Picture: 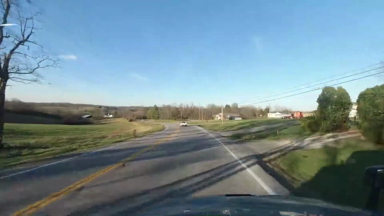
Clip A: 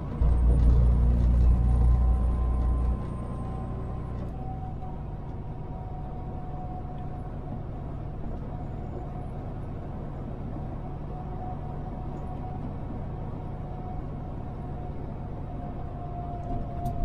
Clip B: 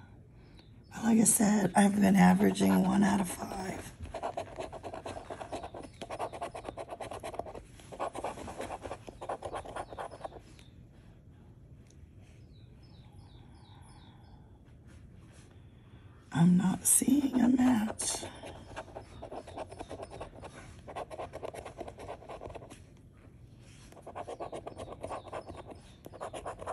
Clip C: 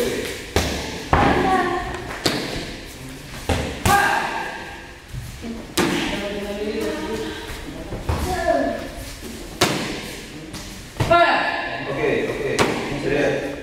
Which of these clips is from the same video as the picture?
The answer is A